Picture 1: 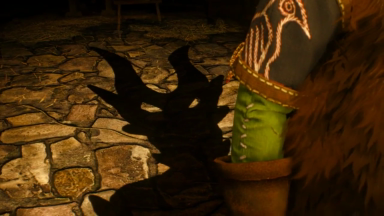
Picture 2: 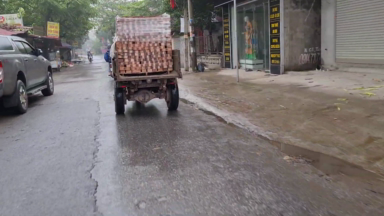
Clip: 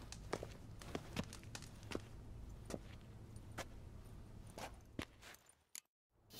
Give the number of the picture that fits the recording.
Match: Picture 1